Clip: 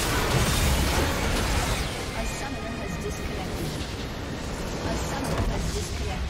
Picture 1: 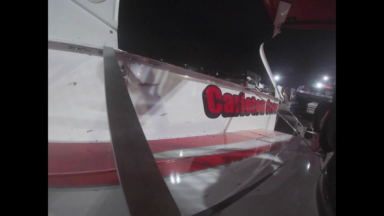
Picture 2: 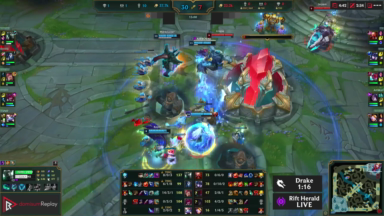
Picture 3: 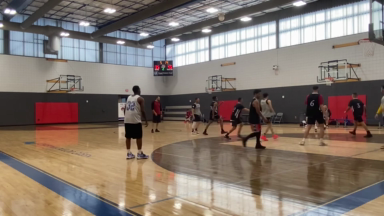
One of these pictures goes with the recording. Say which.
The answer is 2